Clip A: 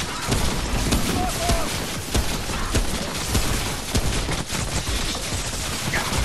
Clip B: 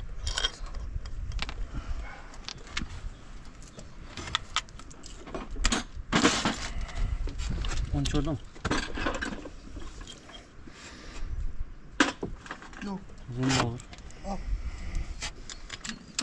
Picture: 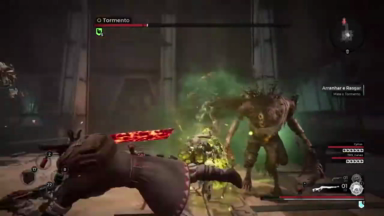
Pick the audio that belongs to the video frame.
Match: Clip A